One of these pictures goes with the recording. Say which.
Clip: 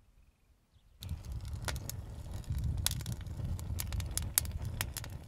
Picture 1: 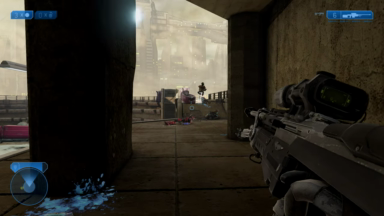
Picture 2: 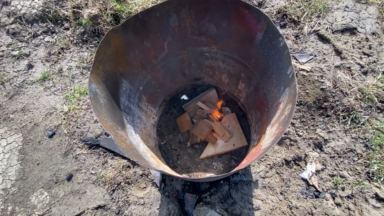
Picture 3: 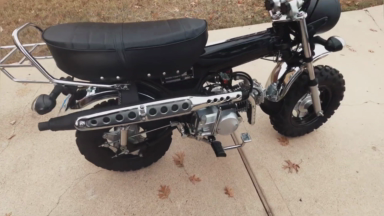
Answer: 2